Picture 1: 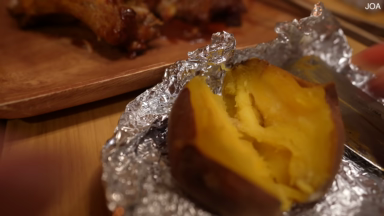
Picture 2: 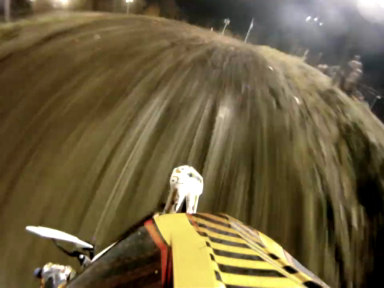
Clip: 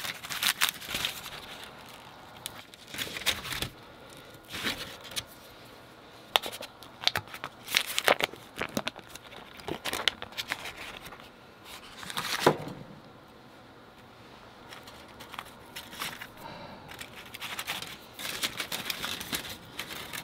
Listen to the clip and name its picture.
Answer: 1